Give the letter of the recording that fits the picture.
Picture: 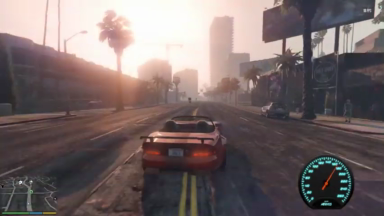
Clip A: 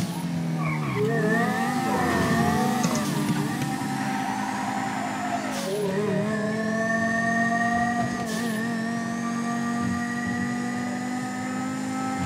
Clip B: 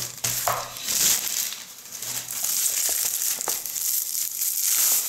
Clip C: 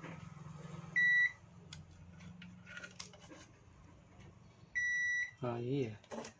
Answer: A